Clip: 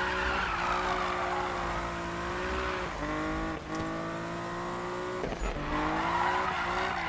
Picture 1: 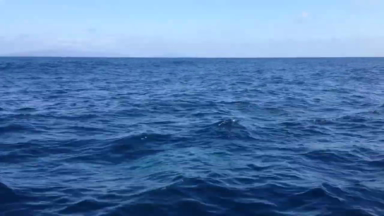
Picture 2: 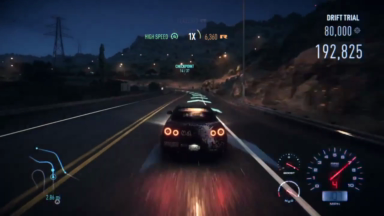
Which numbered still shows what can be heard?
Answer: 2